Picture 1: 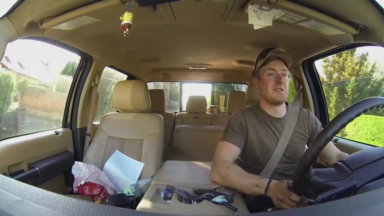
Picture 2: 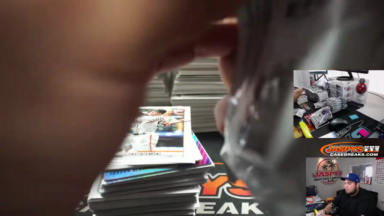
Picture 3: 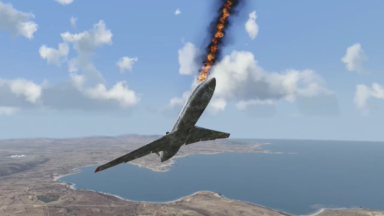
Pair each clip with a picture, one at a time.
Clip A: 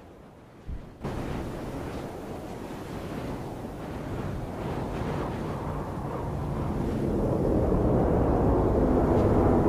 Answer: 3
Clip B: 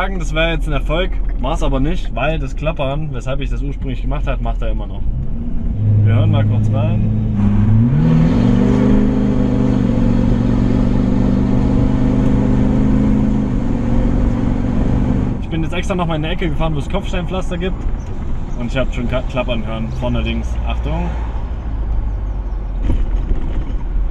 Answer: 1